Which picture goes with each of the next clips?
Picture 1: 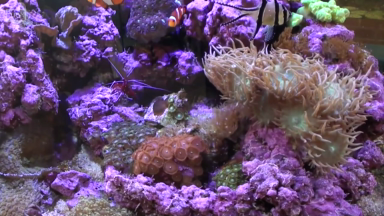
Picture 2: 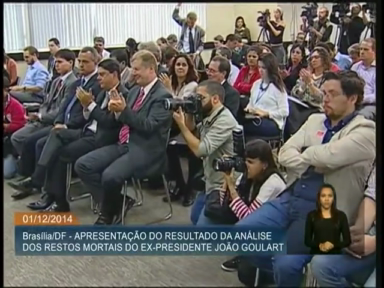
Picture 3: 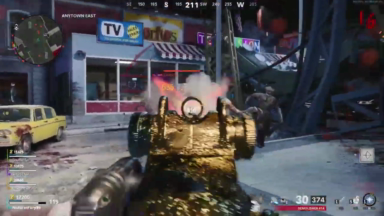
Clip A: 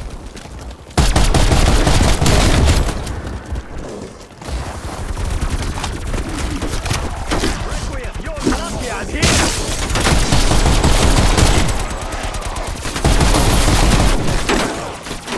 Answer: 3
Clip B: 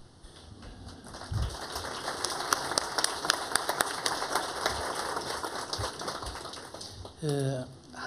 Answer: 2